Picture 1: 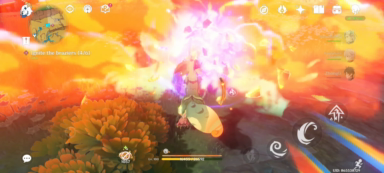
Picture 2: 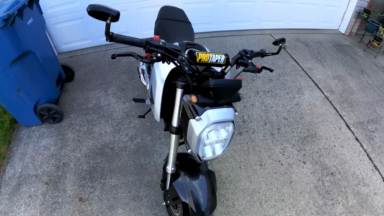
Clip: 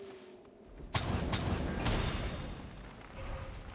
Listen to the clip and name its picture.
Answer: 1